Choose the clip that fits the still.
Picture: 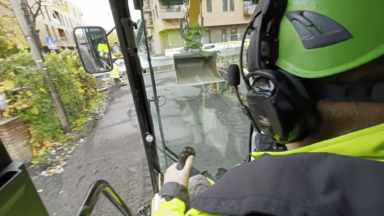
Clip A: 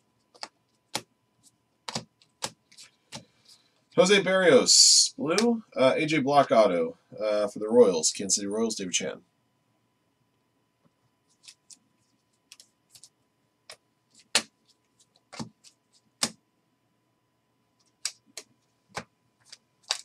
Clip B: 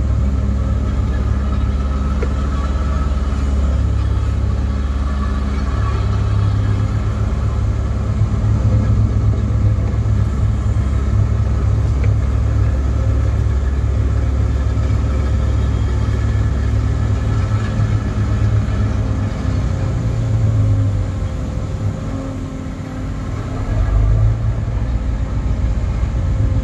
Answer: B